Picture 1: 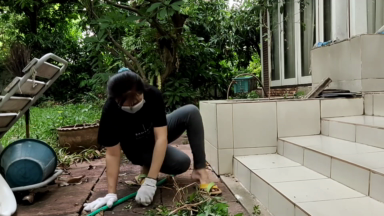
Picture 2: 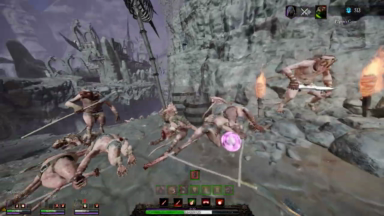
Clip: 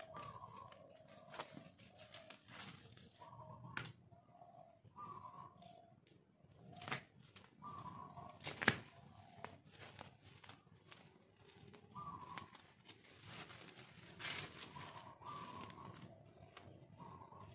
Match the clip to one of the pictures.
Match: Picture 1